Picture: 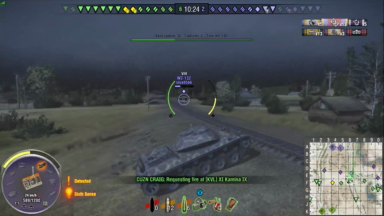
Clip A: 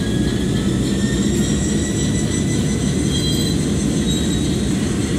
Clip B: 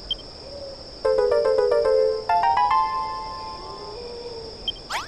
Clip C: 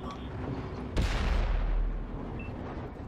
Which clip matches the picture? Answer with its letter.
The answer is C